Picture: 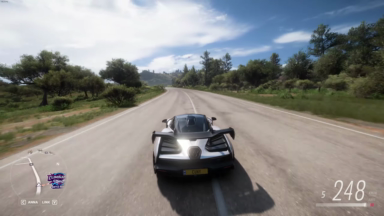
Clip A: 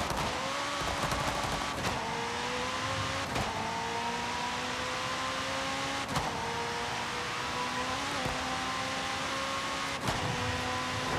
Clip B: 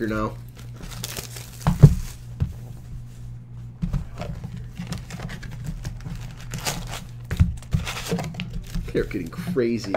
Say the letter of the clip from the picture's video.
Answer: A